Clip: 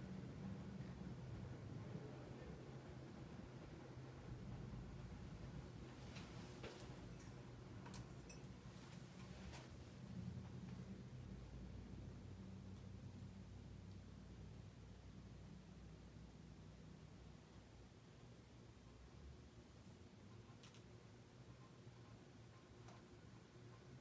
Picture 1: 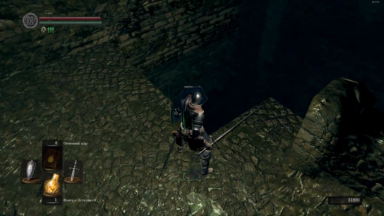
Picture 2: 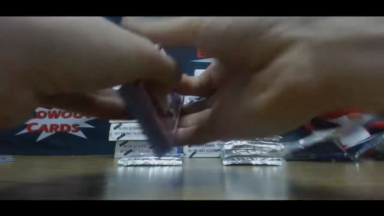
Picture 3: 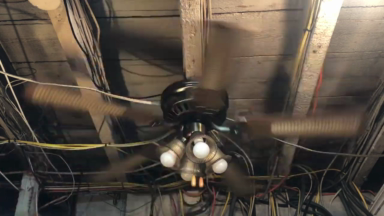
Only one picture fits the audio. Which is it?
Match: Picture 3